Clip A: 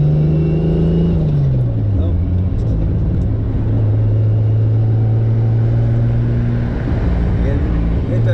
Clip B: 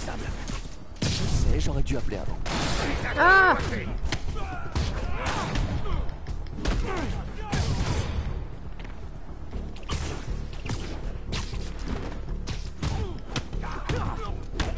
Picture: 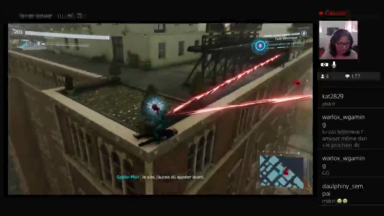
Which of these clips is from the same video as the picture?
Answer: B